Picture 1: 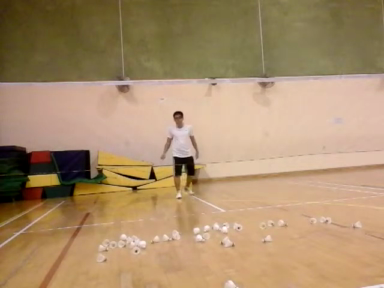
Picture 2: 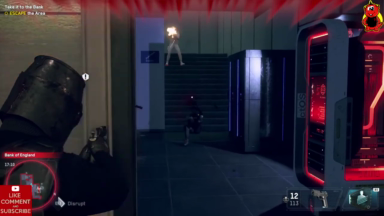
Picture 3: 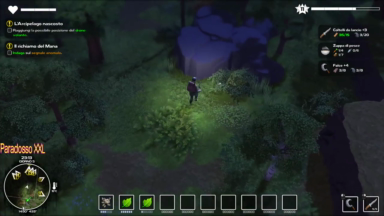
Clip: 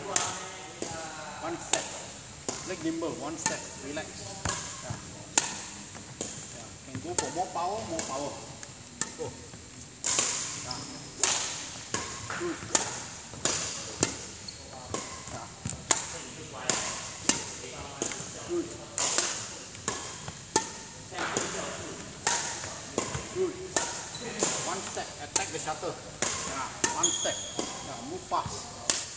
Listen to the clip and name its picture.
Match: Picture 1